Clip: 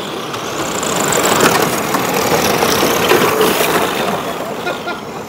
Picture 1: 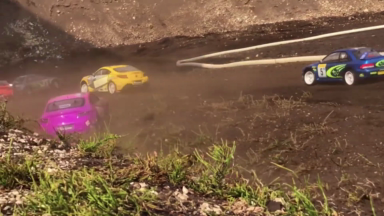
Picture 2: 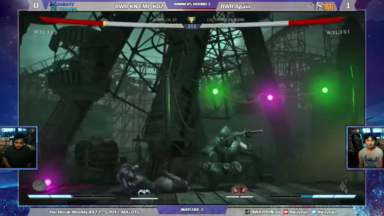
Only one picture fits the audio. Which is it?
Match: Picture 1